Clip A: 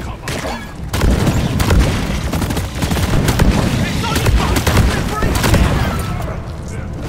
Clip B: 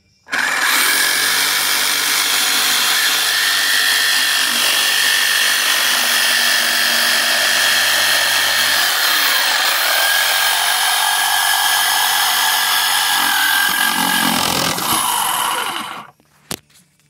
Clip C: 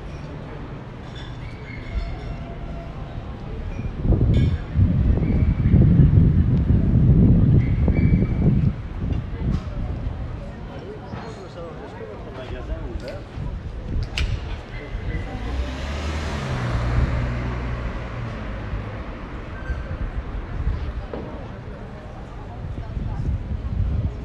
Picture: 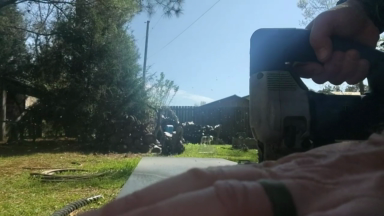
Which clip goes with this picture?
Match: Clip B